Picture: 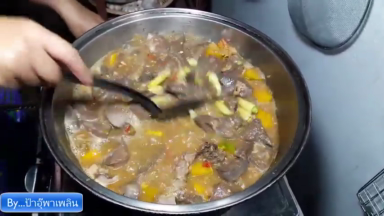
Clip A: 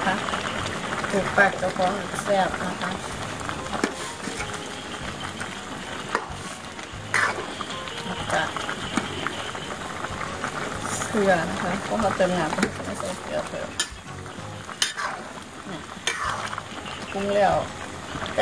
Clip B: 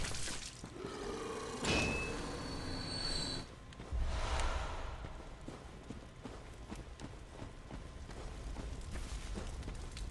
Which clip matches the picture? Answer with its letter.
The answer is A